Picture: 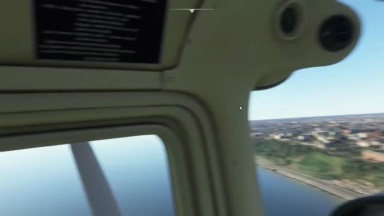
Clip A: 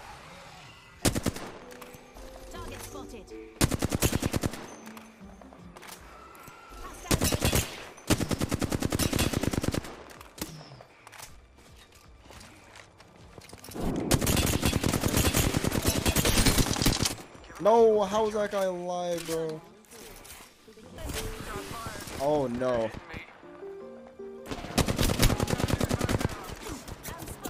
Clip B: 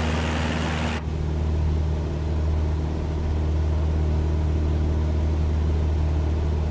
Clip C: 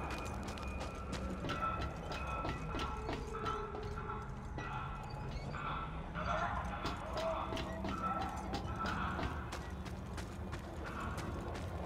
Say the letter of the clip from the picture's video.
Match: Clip B